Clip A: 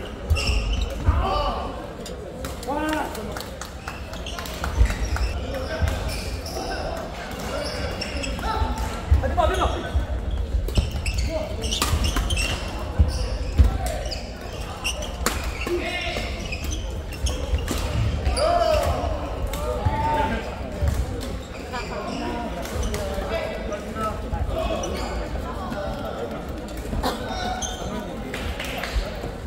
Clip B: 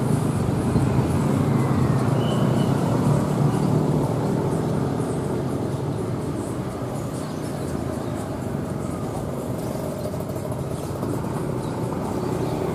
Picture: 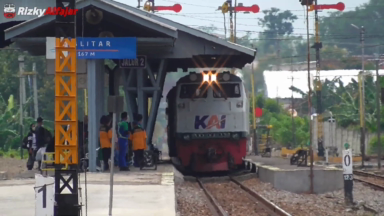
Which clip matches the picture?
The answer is B